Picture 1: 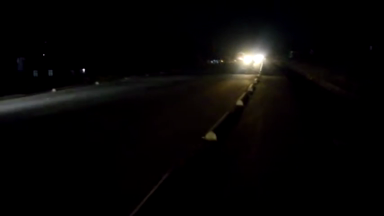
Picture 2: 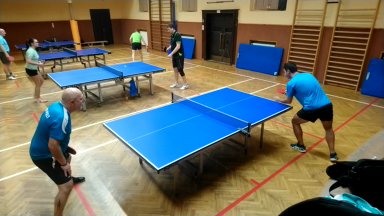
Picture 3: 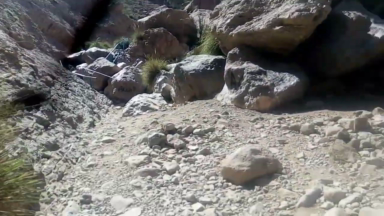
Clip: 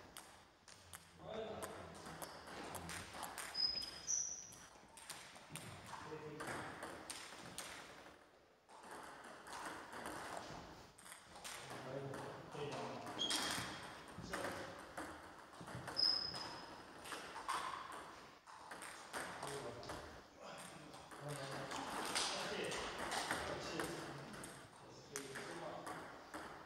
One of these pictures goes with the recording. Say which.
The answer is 2